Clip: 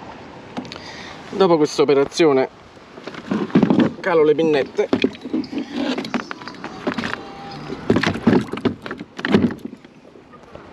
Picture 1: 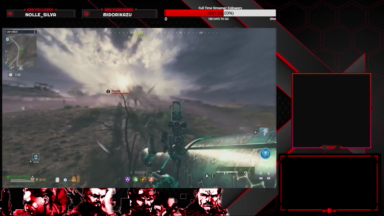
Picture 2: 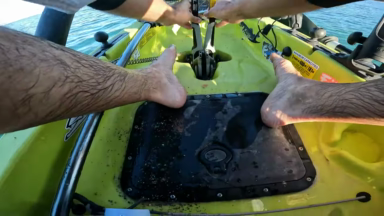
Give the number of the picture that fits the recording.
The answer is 2